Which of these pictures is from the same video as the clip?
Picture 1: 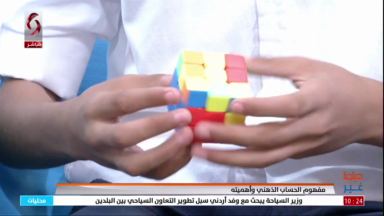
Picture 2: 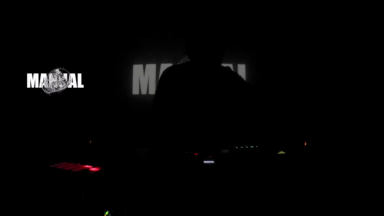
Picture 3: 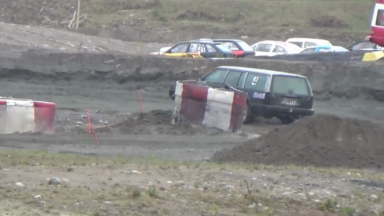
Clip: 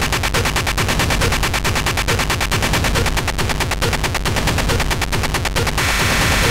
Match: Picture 2